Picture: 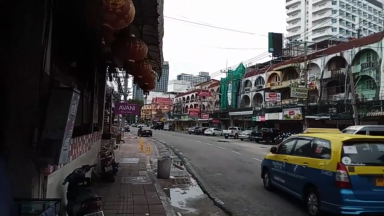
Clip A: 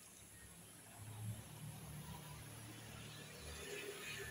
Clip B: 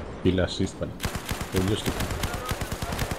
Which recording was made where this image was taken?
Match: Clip A